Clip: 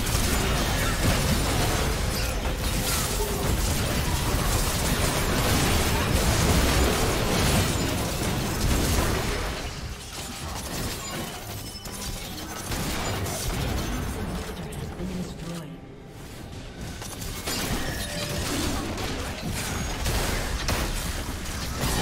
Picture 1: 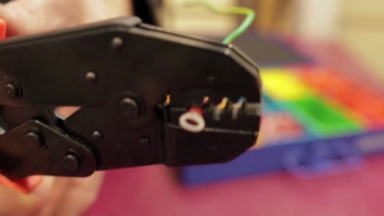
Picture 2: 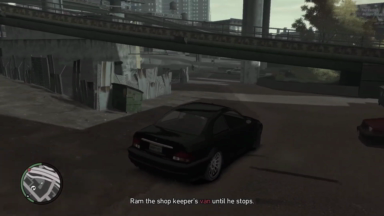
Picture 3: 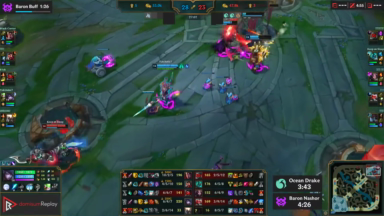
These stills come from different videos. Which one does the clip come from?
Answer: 3